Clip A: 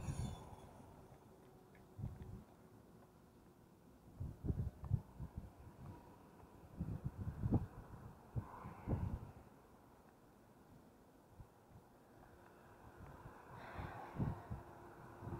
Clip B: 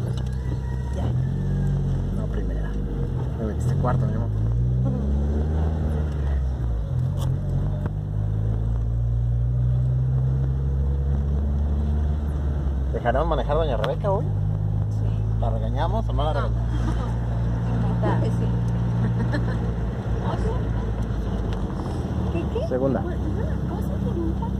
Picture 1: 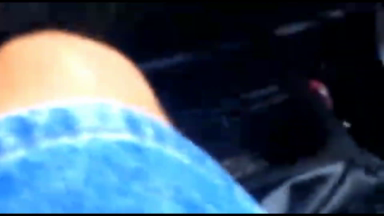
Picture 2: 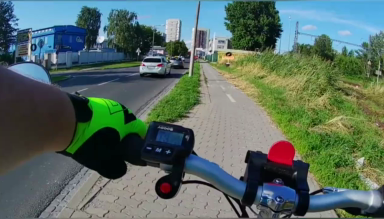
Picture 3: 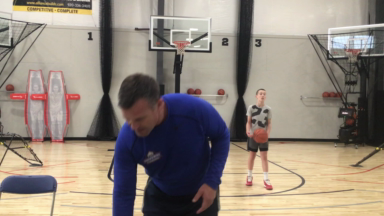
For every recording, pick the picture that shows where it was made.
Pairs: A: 2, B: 1